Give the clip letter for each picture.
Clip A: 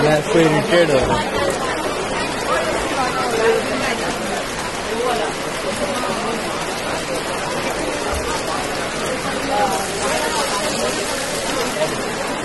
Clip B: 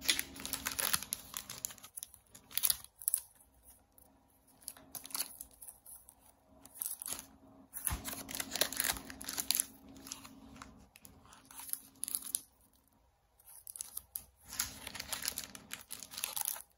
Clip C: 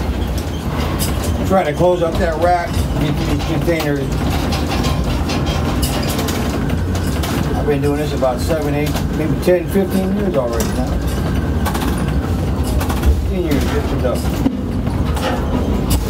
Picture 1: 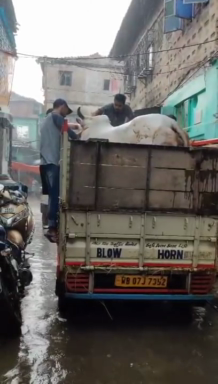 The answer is A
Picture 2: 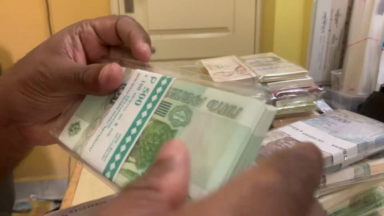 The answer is B